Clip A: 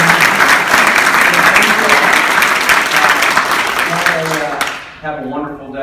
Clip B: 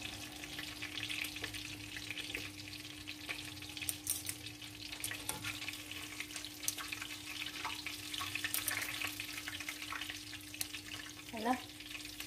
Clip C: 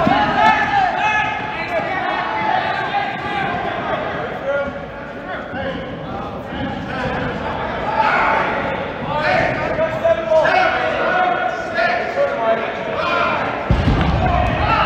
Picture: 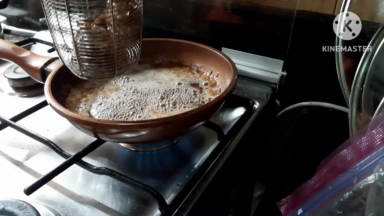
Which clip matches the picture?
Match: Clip B